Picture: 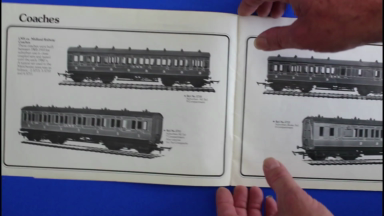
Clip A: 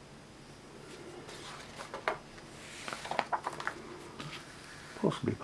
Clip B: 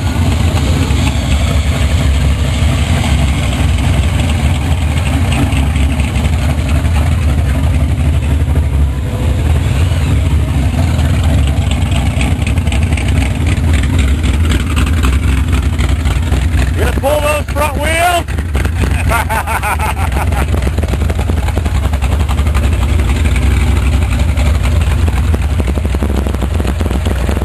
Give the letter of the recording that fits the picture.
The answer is A